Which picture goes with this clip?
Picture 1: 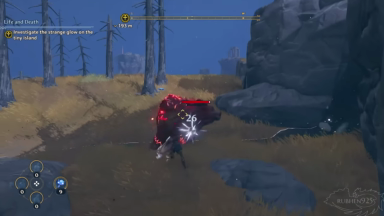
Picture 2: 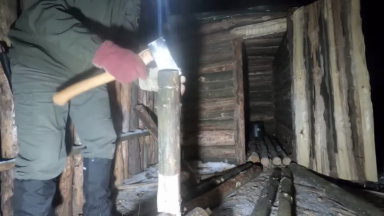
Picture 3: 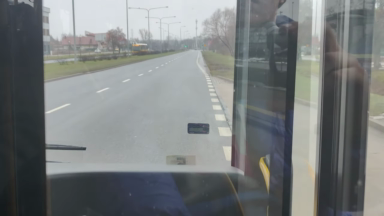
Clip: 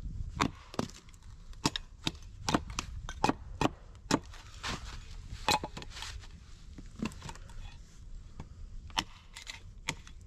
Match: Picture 2